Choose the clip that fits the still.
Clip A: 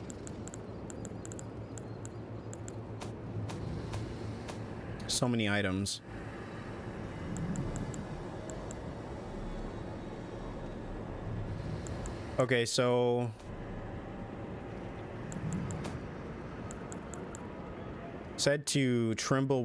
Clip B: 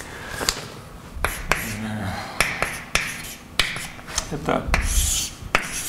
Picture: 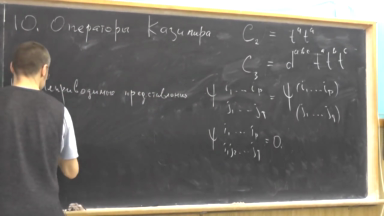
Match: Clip B